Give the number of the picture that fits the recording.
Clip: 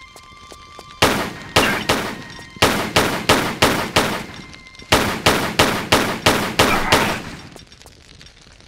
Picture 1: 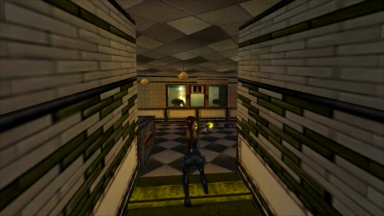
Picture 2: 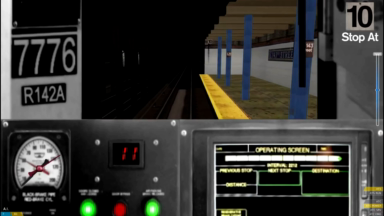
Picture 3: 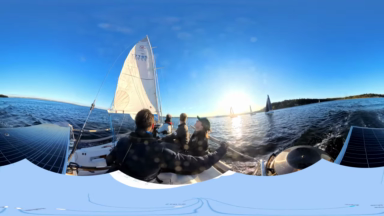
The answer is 1